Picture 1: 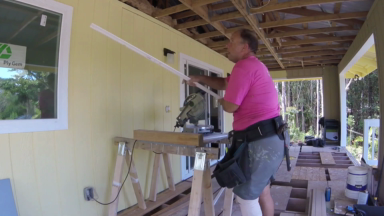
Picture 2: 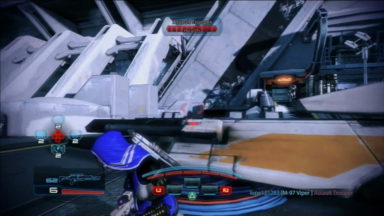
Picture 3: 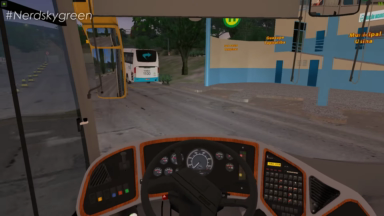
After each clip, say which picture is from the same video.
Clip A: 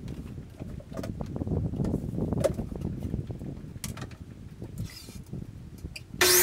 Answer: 1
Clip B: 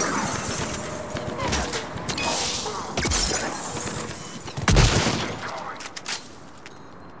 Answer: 2